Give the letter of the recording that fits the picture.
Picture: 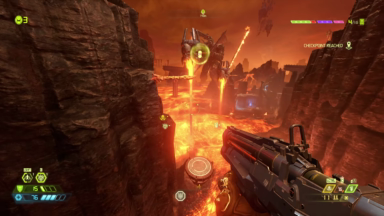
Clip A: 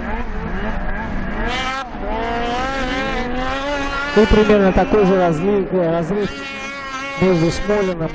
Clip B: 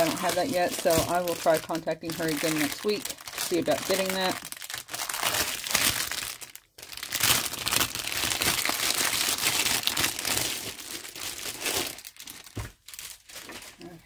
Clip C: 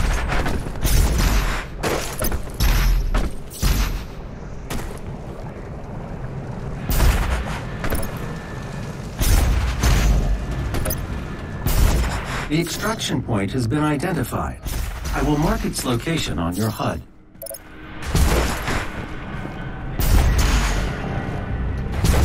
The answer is C